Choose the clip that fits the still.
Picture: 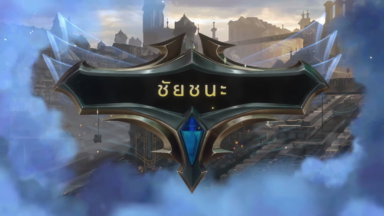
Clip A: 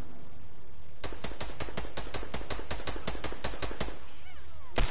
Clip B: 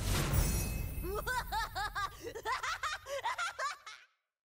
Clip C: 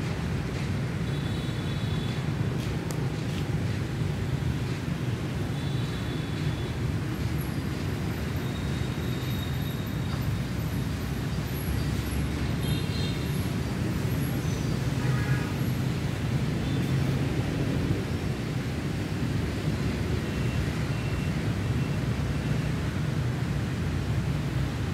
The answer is B